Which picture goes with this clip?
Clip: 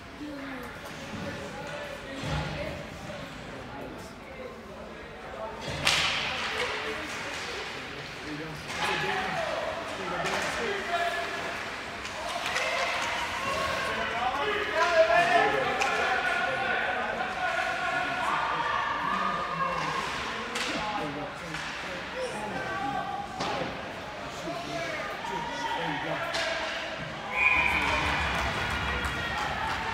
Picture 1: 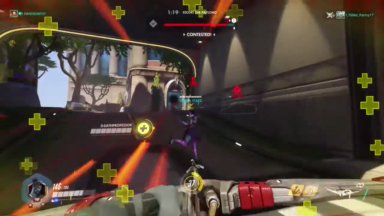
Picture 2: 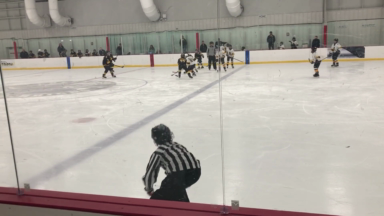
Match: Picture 2